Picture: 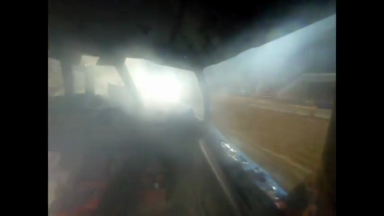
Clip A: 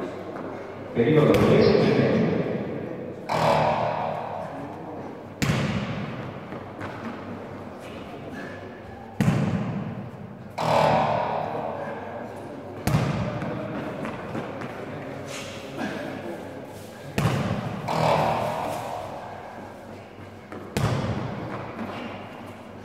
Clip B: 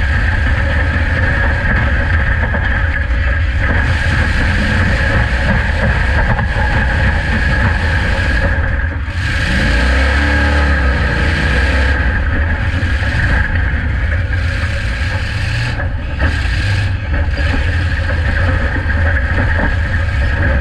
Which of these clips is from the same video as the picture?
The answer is B